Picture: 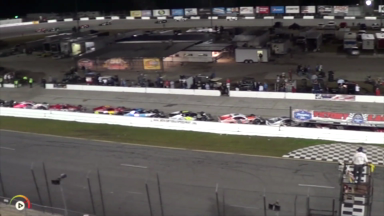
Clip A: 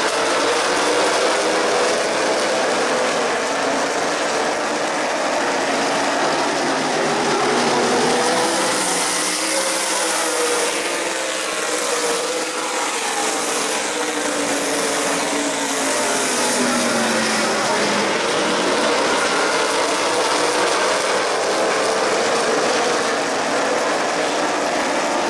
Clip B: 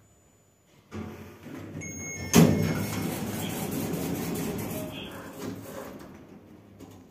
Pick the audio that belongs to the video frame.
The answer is A